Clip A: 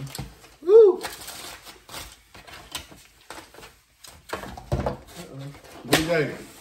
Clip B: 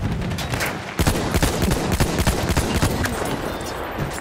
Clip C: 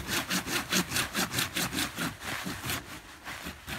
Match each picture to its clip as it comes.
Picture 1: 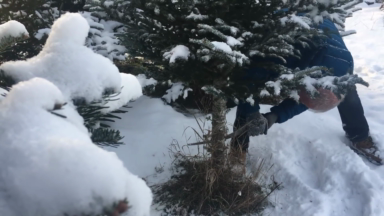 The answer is C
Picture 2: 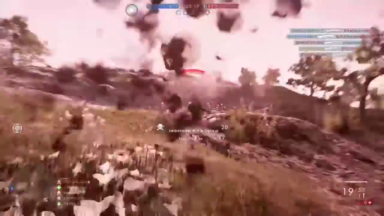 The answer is B